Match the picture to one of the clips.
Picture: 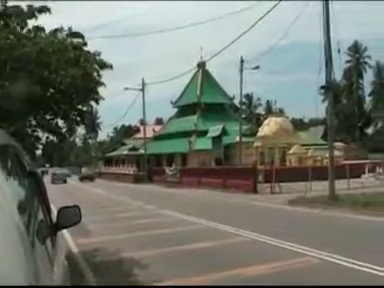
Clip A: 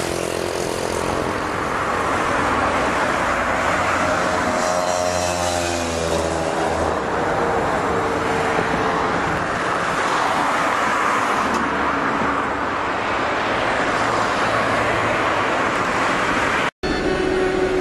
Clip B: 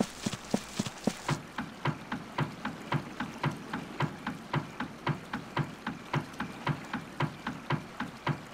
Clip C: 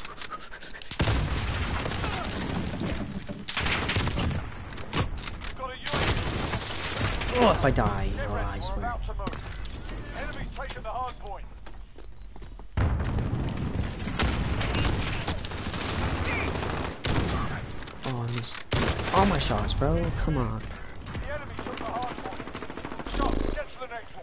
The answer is A